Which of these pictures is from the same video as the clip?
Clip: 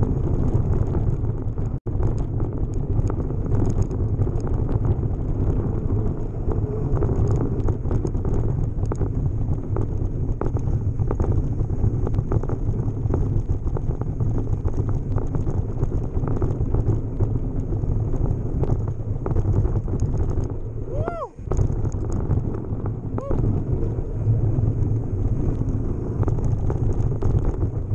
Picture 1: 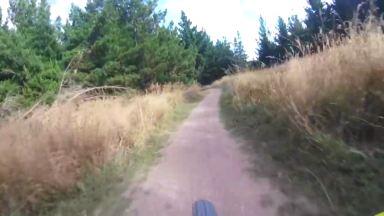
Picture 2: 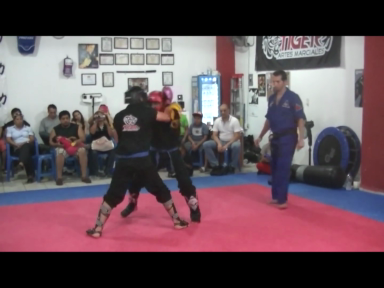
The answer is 1